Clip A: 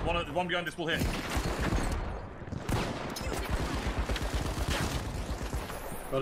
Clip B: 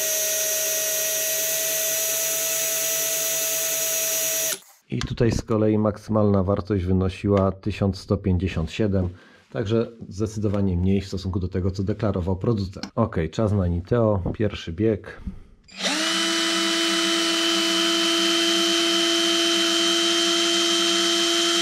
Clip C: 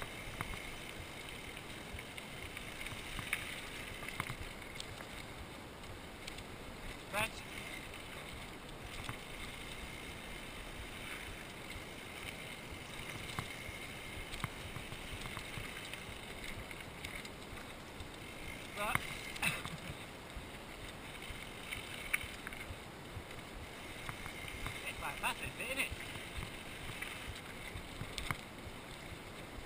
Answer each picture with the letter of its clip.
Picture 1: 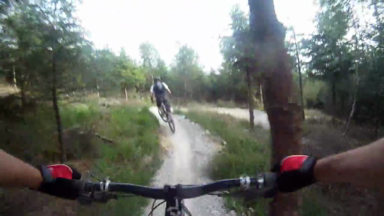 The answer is C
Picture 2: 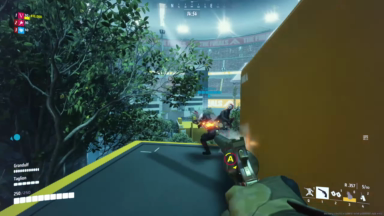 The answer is A